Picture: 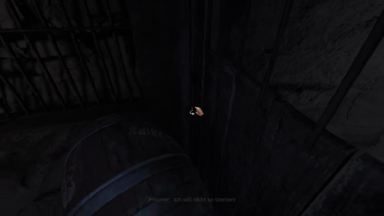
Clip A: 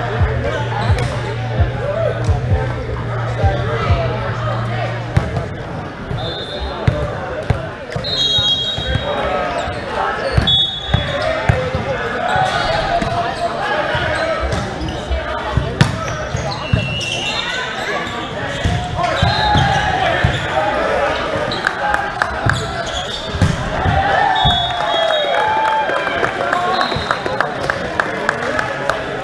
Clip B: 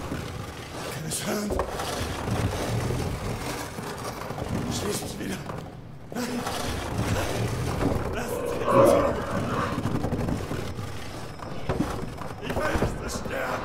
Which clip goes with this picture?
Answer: B